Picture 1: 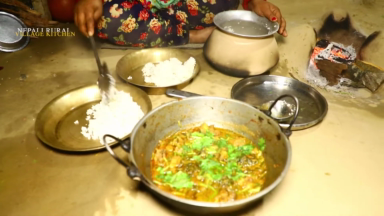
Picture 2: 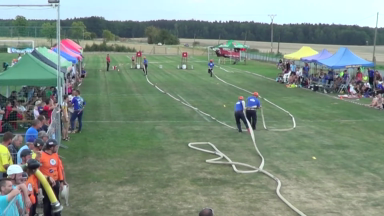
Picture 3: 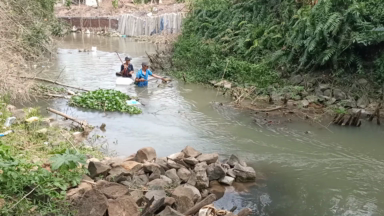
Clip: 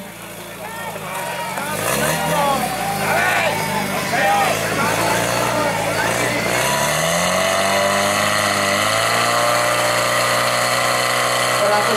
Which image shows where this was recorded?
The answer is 2